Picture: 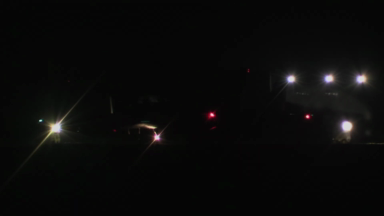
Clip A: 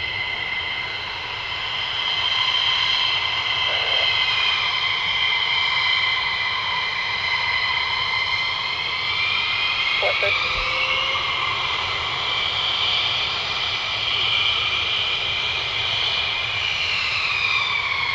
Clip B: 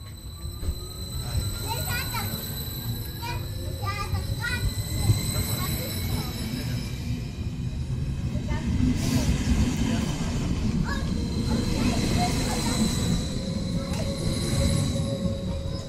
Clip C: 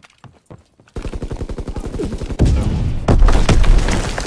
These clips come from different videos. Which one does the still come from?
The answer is A